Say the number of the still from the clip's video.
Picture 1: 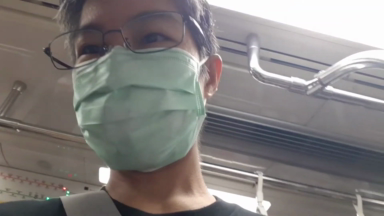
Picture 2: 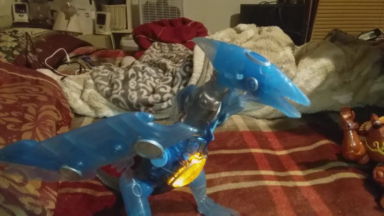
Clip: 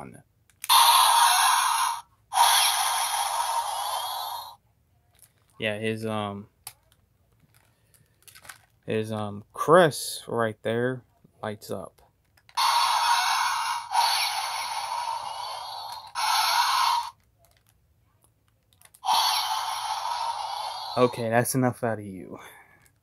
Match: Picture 2